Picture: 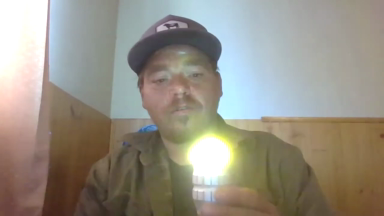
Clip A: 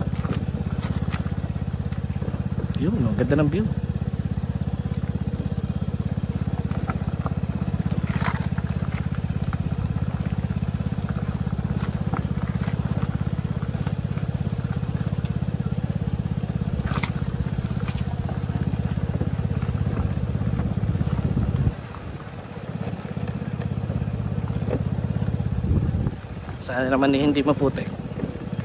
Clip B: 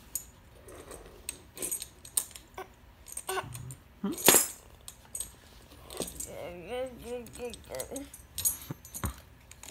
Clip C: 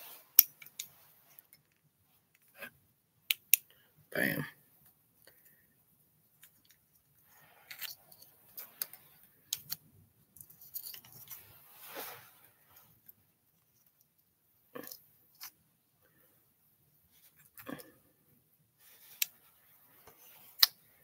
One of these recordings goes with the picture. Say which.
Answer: C